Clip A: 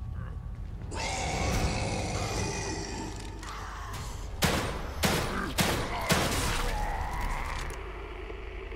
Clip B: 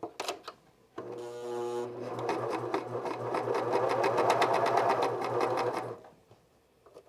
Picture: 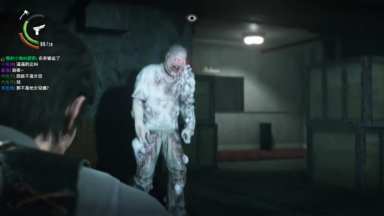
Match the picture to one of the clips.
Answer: A